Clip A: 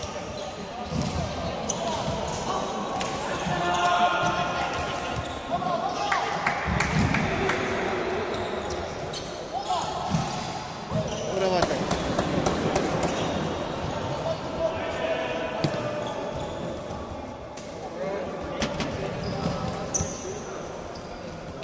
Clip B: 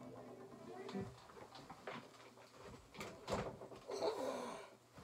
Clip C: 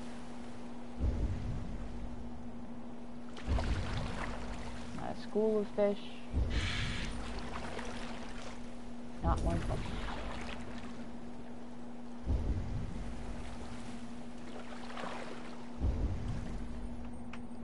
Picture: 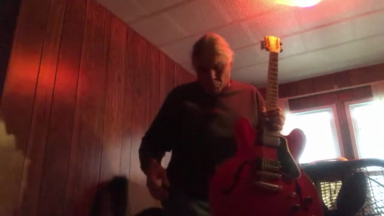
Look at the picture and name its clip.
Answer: B